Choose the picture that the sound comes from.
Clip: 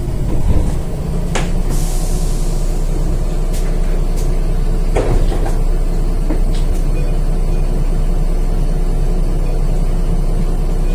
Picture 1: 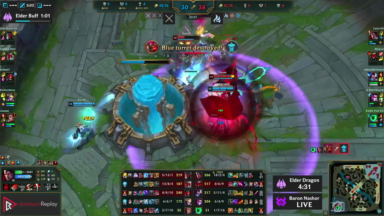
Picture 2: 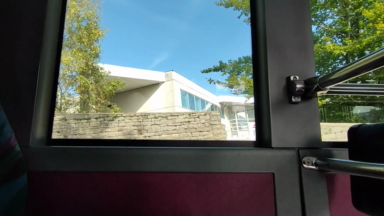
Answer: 2